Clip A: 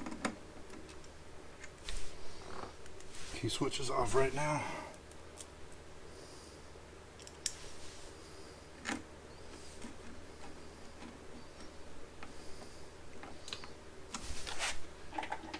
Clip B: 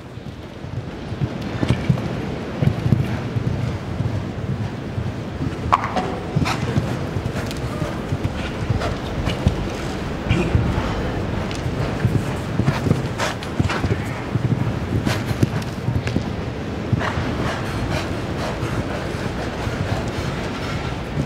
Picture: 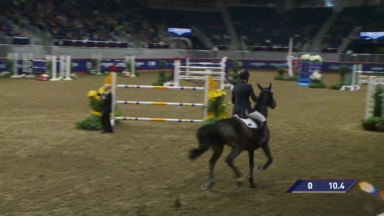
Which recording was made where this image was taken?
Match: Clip B